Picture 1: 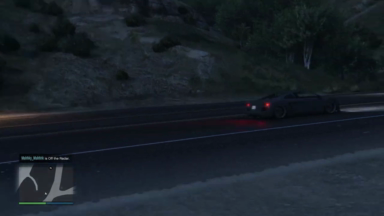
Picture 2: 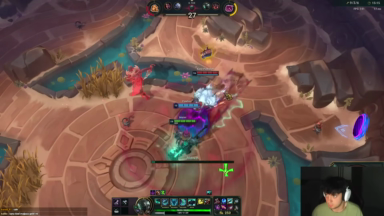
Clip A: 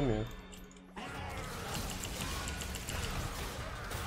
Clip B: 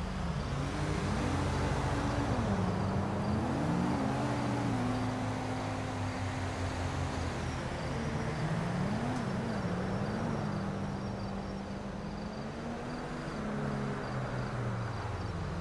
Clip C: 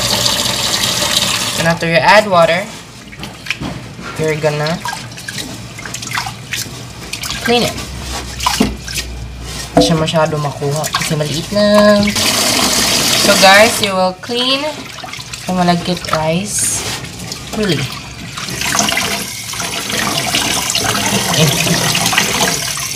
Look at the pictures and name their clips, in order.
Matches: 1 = B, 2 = A